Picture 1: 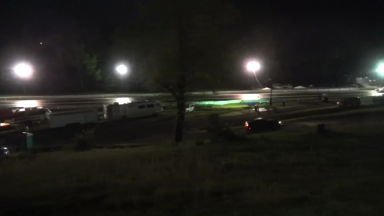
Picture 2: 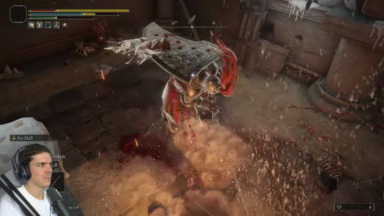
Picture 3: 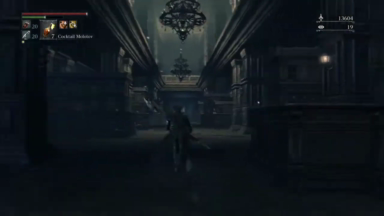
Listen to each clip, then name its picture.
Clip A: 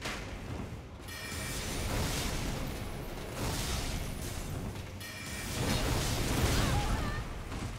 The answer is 2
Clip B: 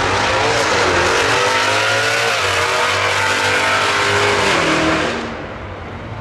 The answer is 1